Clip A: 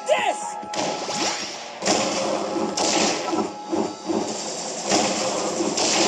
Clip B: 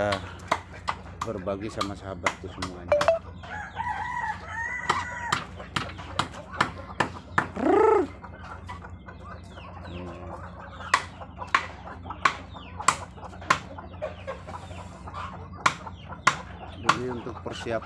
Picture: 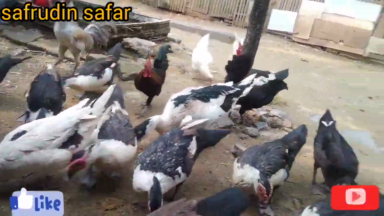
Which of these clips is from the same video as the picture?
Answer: B